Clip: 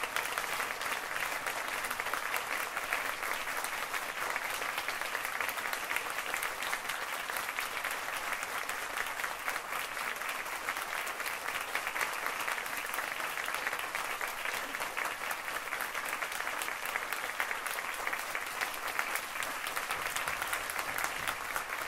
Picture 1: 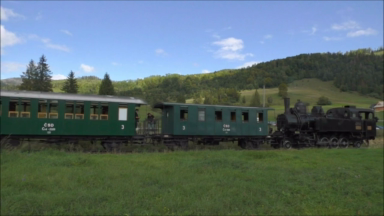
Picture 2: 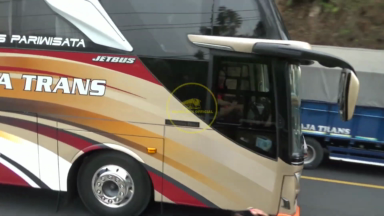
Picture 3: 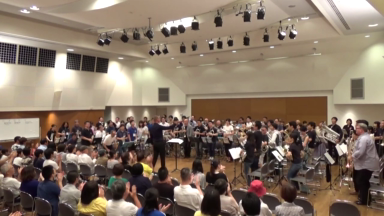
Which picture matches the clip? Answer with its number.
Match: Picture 3